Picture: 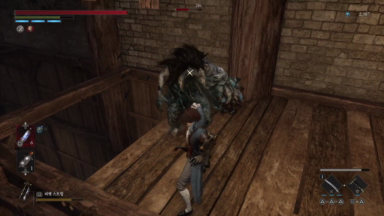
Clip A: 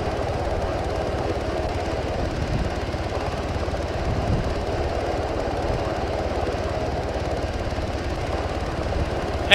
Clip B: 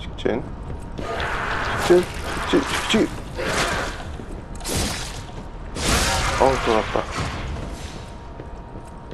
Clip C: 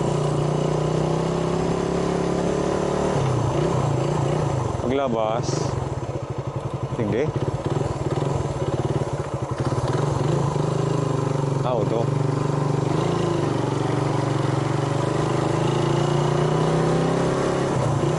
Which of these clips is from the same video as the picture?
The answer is B